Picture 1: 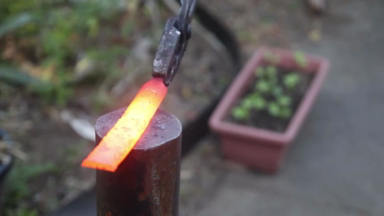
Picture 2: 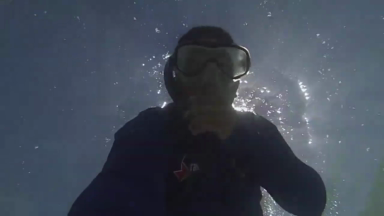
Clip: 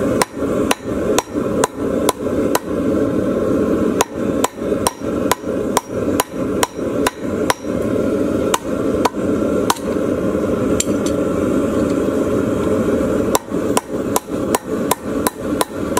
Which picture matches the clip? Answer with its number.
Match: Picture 1